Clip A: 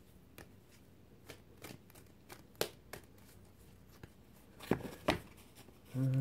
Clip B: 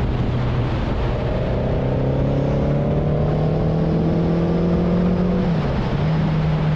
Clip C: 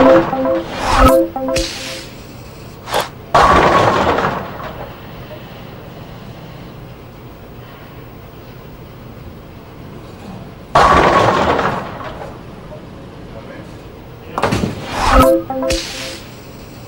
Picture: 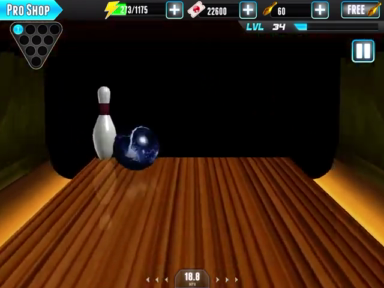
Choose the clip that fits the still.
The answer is C